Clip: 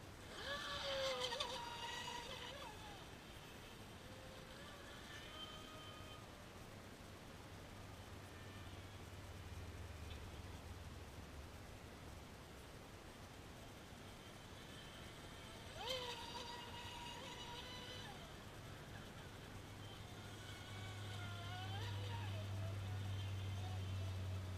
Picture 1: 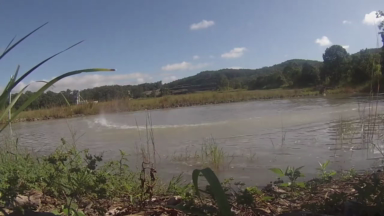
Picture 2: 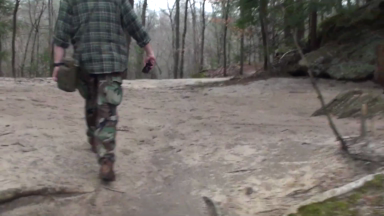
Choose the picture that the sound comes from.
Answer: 1